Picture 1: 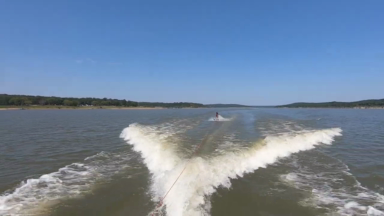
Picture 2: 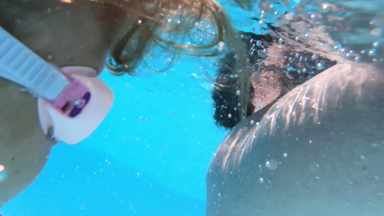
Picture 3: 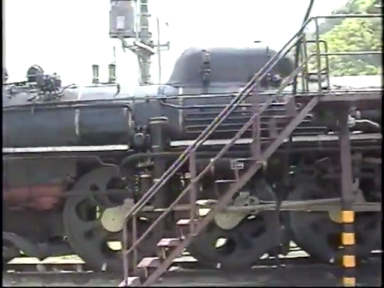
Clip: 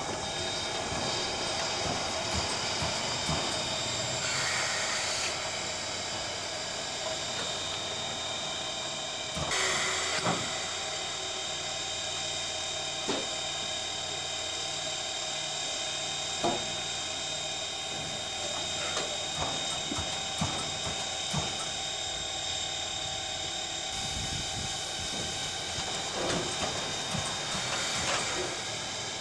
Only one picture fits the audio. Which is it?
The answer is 3